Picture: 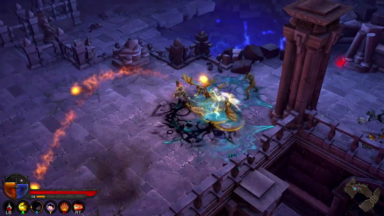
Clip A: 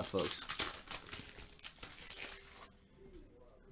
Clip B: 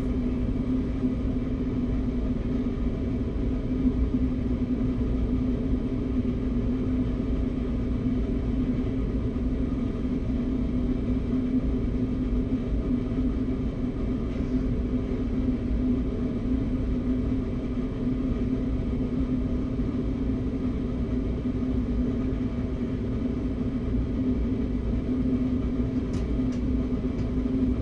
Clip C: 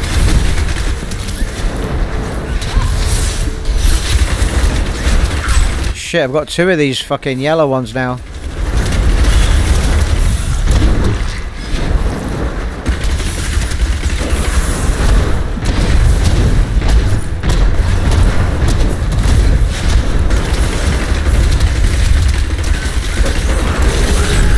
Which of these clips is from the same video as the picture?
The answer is C